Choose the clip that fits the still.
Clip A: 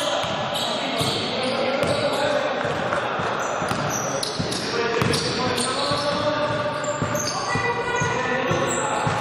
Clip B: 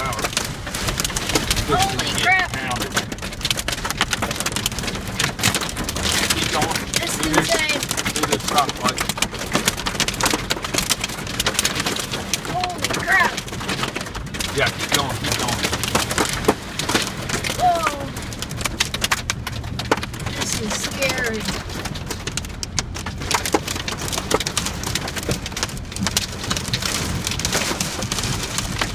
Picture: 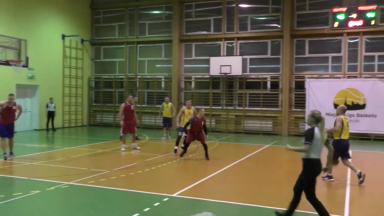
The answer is A